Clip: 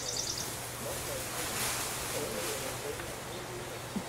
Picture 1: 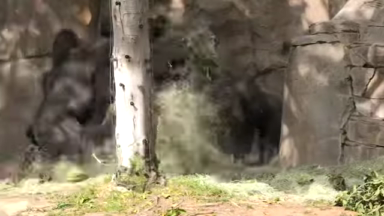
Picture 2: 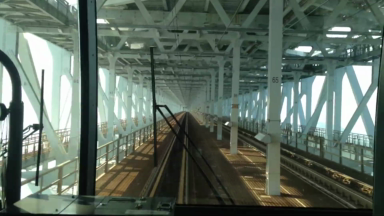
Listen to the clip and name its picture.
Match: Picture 1